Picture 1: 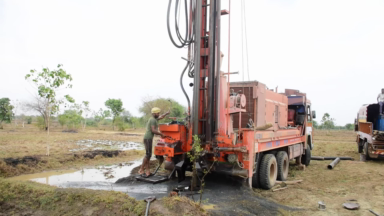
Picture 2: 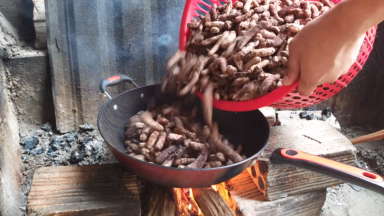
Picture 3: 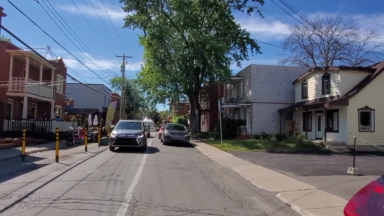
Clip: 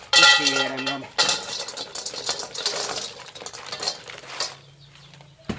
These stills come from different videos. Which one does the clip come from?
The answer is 2